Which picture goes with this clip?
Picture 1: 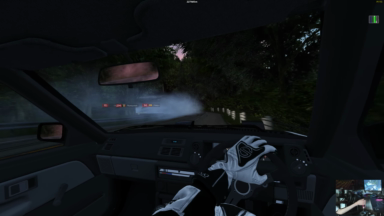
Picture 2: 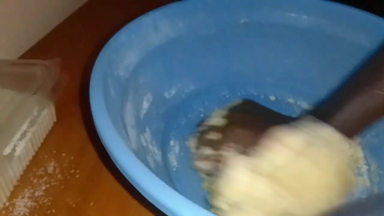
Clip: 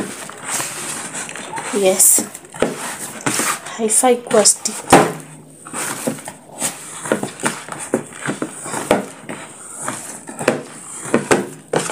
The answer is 2